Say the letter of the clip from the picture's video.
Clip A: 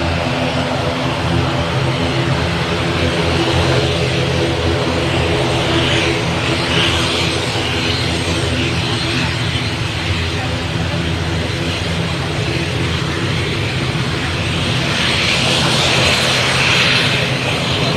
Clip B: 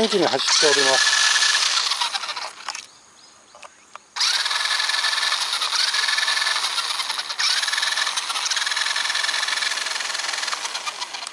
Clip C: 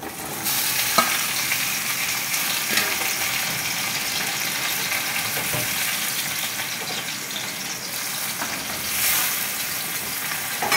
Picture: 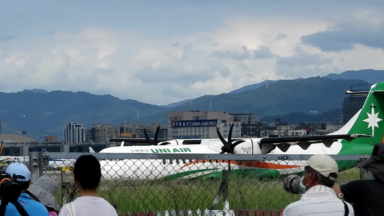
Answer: A